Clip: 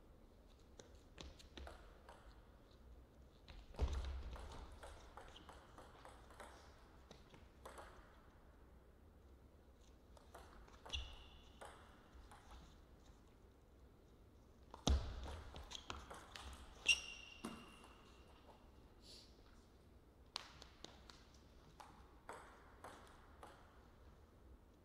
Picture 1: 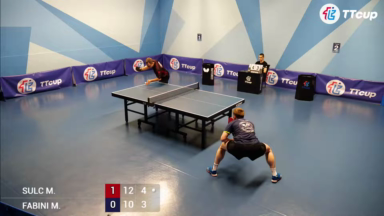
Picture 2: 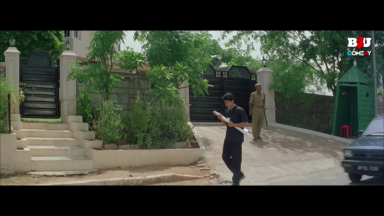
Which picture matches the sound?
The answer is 1